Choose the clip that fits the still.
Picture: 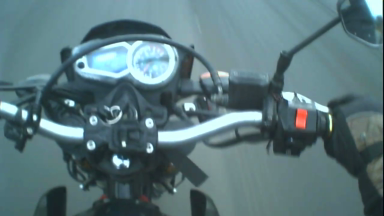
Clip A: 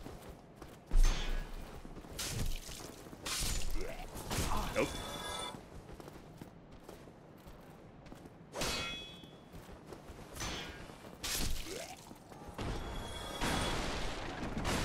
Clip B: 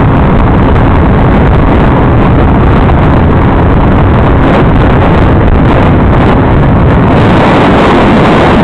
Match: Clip B